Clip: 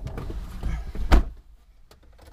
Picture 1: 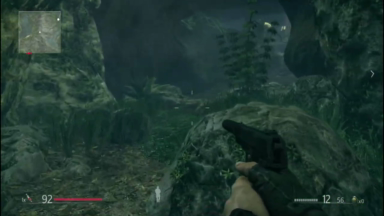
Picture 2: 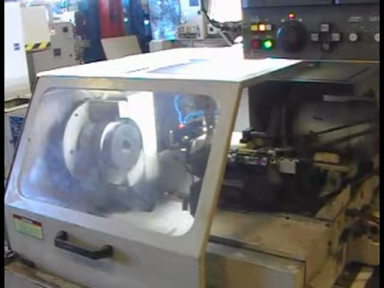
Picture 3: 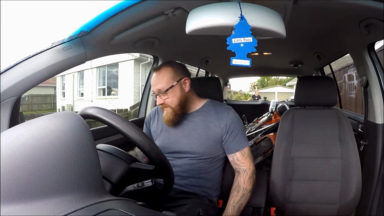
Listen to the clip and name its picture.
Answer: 3